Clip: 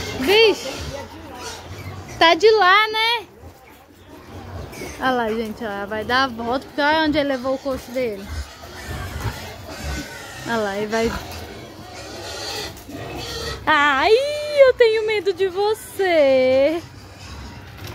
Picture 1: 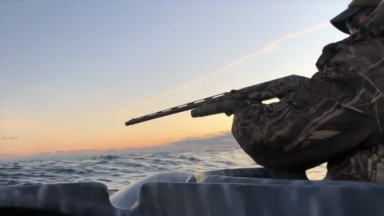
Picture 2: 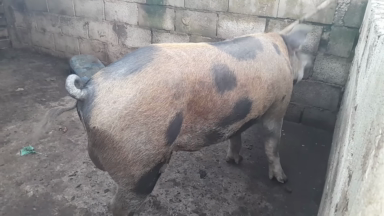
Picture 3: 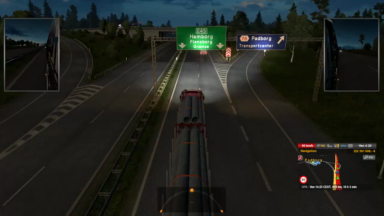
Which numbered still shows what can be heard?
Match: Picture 2